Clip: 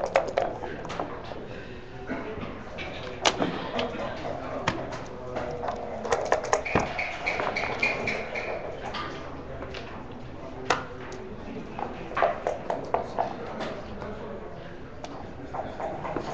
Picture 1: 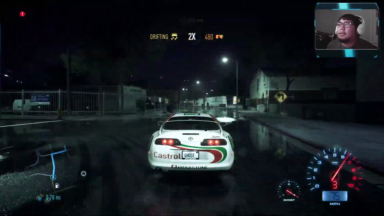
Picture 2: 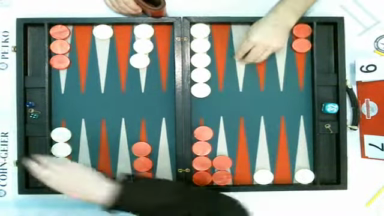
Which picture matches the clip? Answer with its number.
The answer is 2